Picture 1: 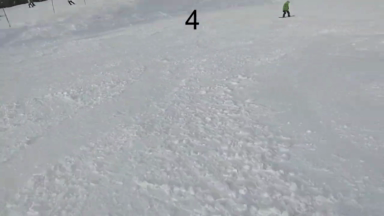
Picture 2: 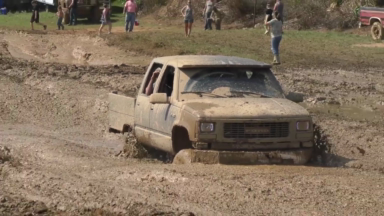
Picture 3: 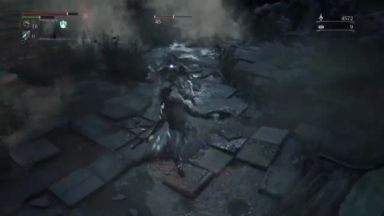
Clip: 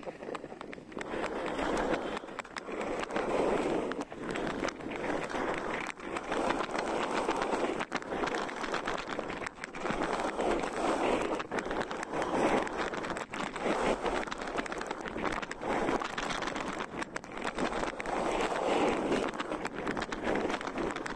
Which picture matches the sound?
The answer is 1